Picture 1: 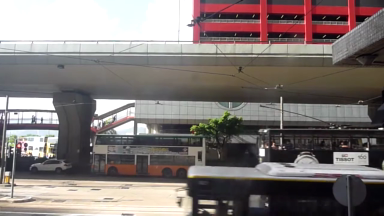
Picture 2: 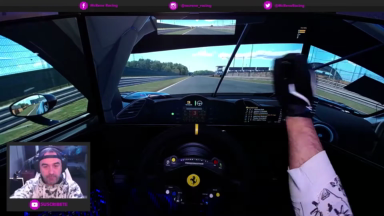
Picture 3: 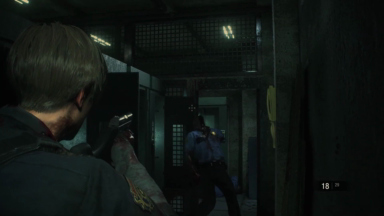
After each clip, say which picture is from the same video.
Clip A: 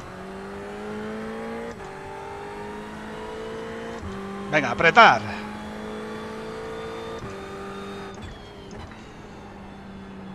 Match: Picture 2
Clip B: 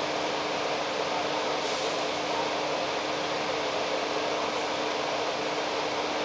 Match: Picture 1